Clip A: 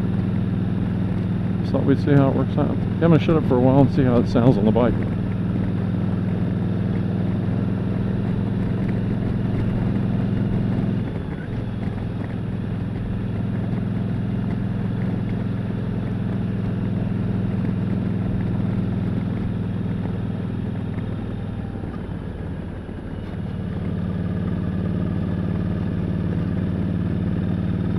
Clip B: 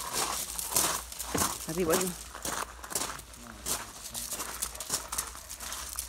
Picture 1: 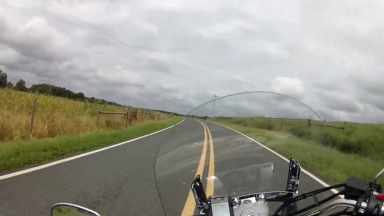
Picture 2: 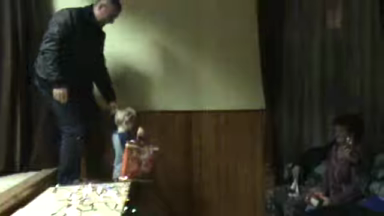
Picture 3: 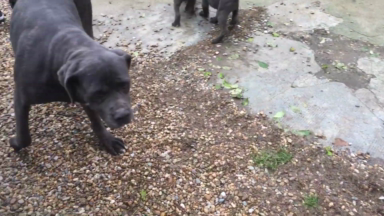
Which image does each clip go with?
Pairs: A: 1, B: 3